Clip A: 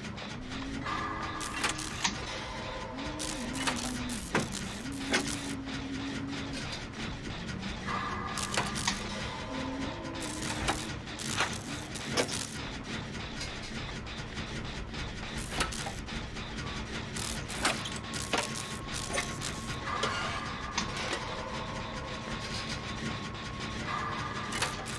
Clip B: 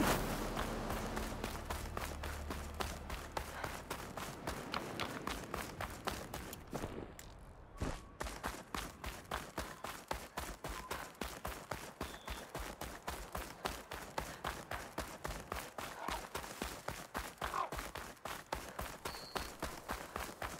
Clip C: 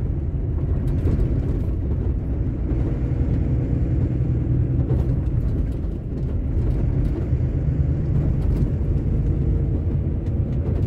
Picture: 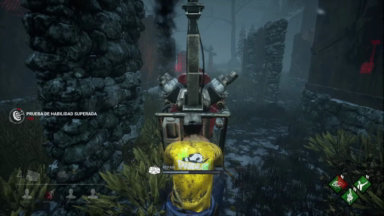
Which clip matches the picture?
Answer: A